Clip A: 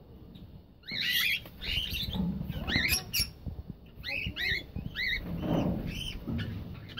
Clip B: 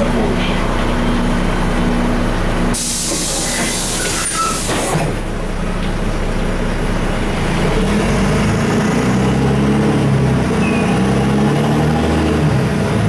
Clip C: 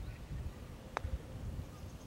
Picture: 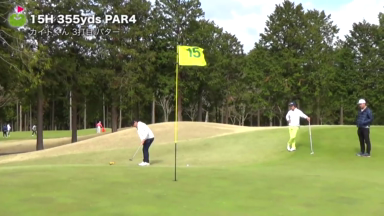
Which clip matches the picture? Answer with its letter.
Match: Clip C